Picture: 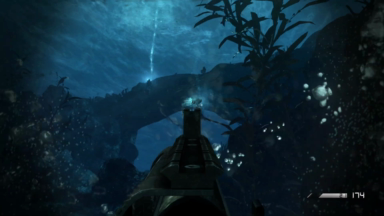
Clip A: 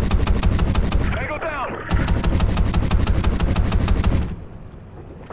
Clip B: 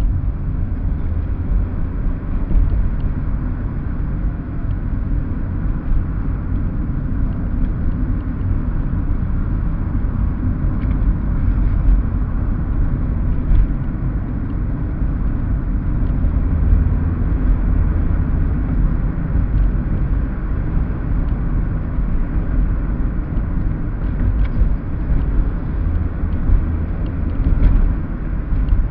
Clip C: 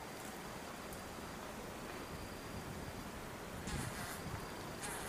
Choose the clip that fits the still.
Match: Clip A